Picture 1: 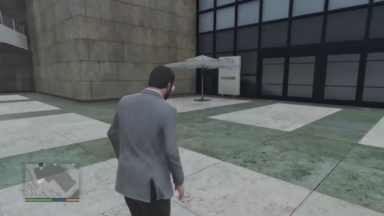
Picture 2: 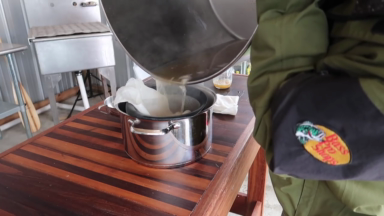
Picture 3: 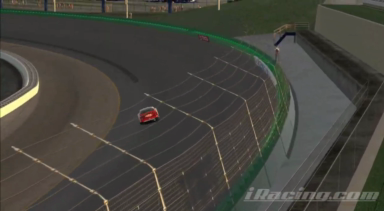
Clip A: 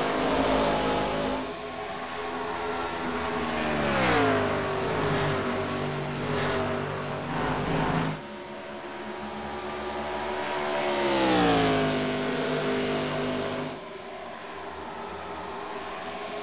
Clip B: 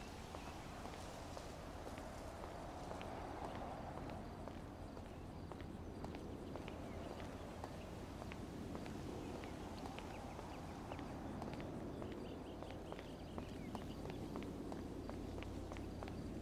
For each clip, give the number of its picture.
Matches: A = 3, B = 1